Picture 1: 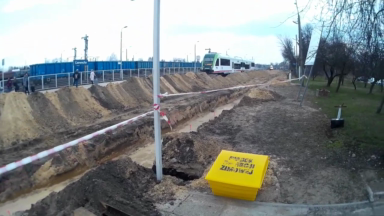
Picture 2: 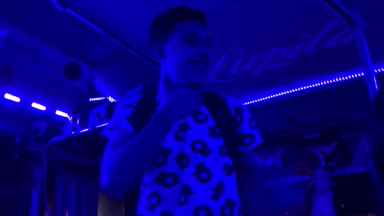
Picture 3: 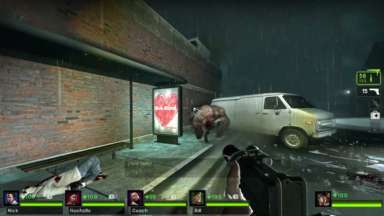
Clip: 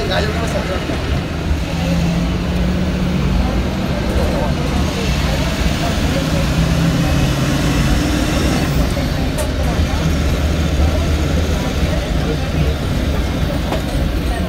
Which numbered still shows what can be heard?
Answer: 2